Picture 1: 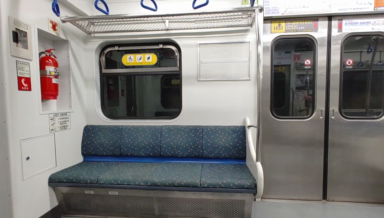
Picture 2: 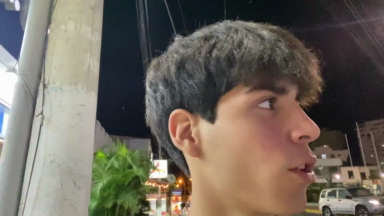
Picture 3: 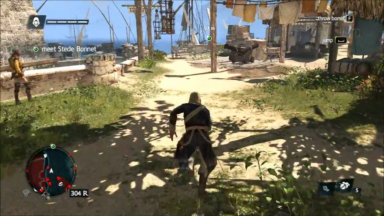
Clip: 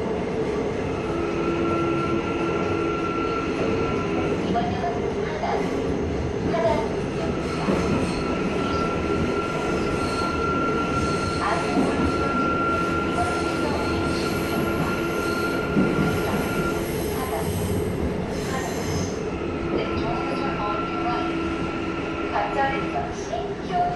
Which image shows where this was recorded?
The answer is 1